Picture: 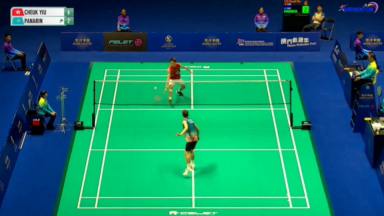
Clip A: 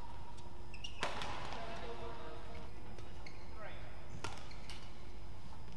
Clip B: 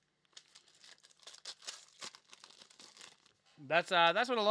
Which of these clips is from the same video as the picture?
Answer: A